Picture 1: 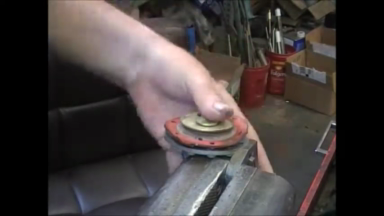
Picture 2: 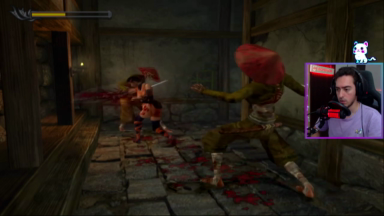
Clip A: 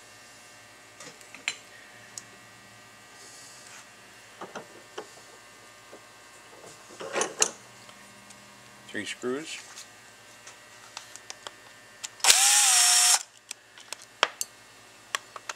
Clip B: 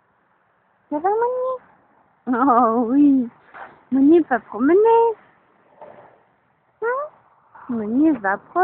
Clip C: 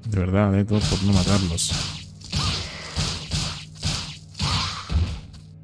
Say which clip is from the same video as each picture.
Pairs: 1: A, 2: C